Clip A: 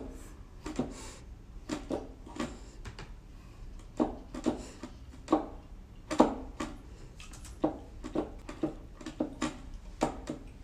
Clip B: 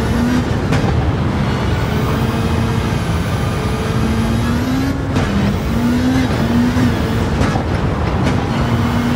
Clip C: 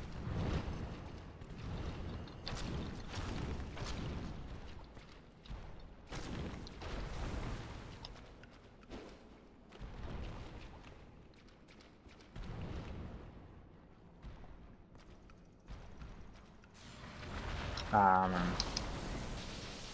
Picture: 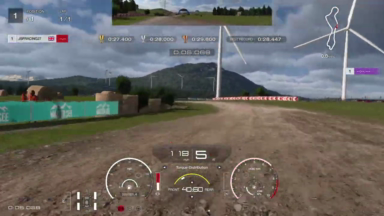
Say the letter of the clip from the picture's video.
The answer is B